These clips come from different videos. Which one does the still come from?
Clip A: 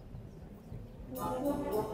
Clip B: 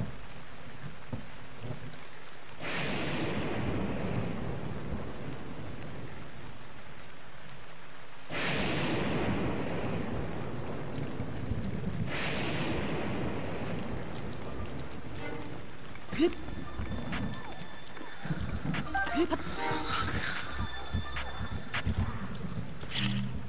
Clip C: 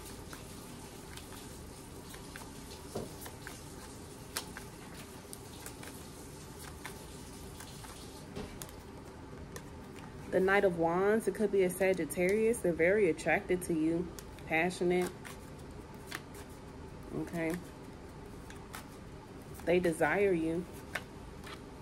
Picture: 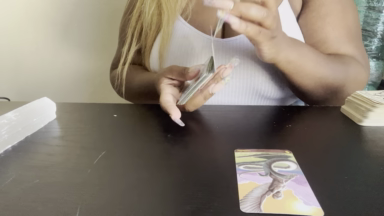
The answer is C